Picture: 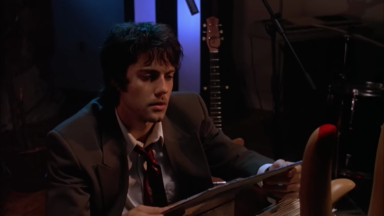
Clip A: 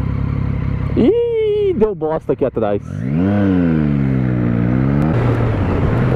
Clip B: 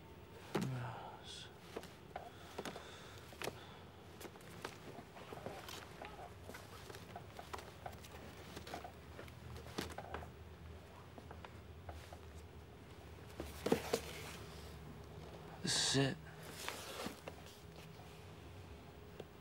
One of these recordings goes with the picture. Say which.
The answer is B